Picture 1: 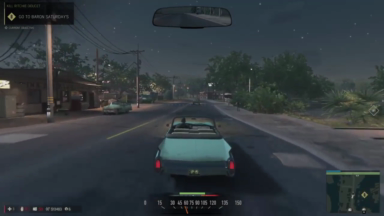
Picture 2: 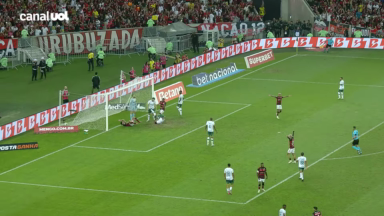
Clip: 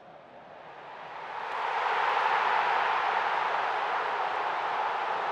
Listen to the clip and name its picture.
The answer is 2